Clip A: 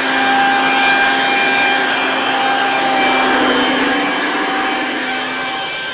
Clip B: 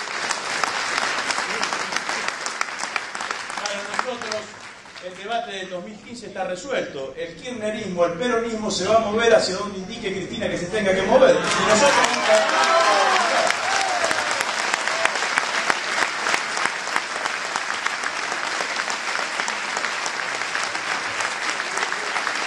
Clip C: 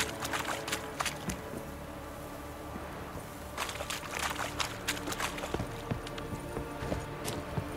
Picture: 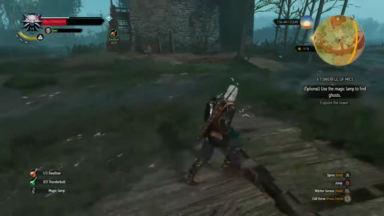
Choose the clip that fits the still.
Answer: C